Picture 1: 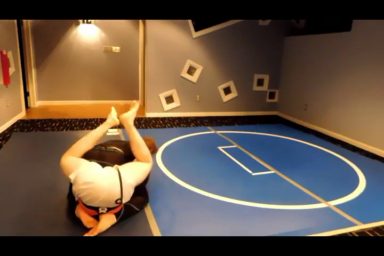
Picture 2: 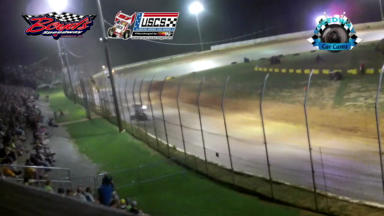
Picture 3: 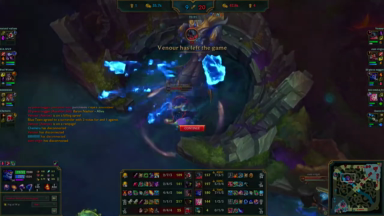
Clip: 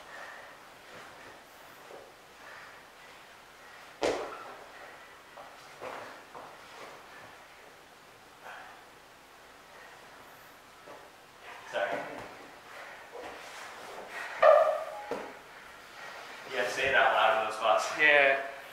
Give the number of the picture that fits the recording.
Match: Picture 1